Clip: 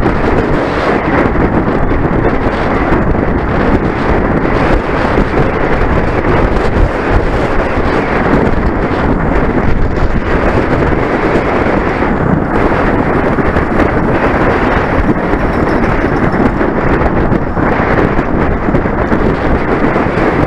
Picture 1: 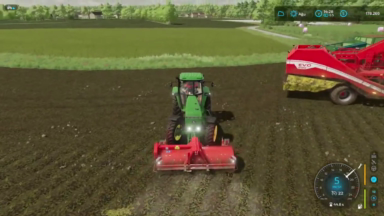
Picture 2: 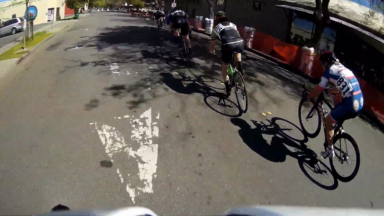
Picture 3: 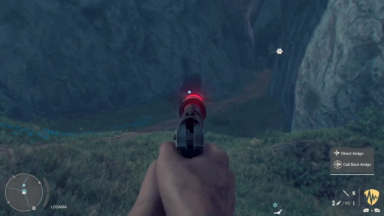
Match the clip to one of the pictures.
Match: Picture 2